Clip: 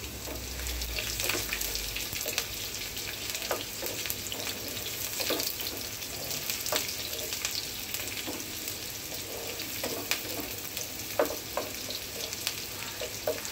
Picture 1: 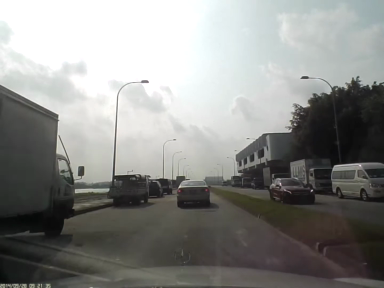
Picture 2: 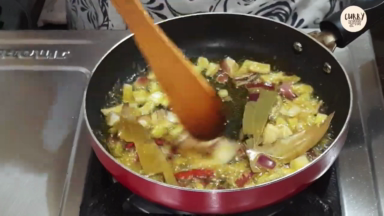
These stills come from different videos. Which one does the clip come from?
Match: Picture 2